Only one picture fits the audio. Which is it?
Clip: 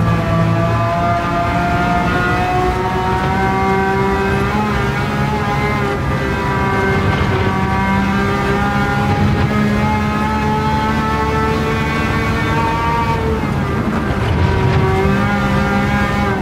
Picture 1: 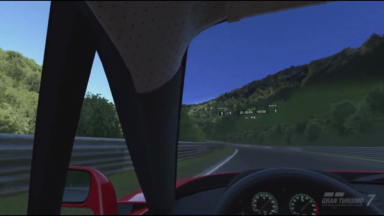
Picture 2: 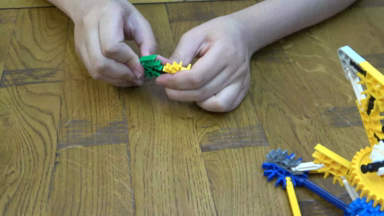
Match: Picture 1